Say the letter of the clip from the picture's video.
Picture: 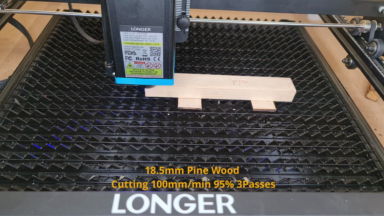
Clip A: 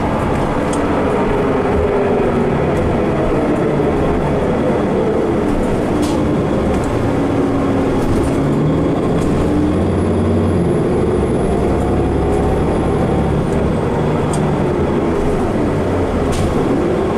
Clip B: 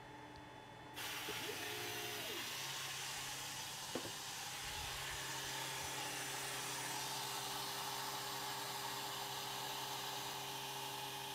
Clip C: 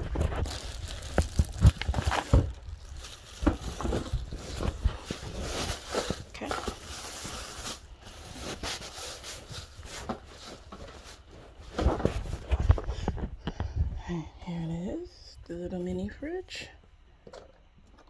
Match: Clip B